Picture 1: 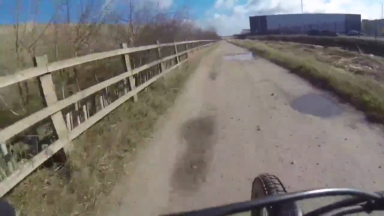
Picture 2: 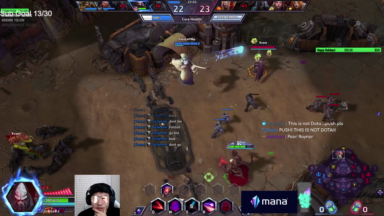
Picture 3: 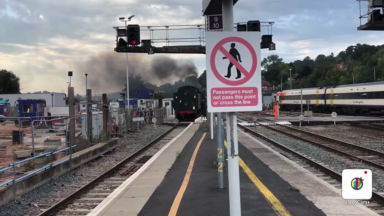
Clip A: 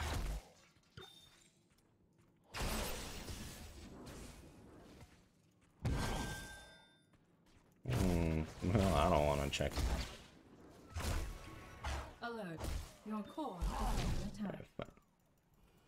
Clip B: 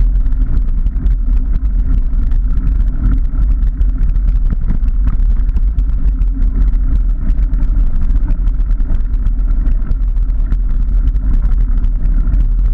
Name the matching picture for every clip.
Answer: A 2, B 1